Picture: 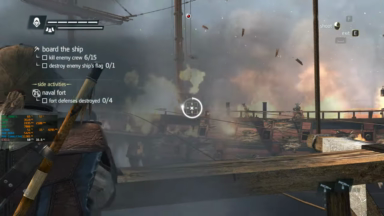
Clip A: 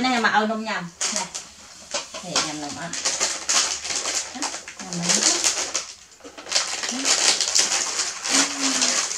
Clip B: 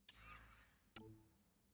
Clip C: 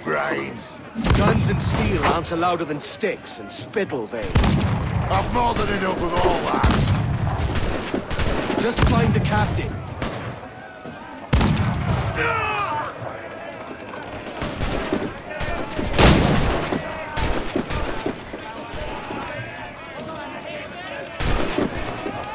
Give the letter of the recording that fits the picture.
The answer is C